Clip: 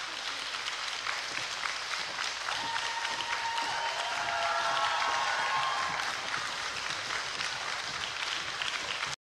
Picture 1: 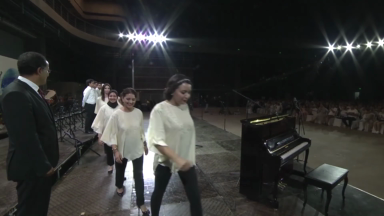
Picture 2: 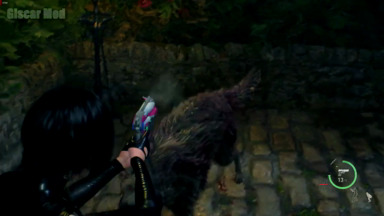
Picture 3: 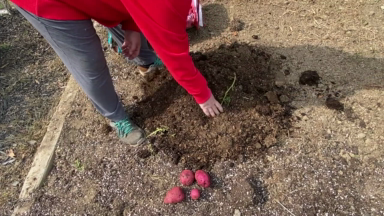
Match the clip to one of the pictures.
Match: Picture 1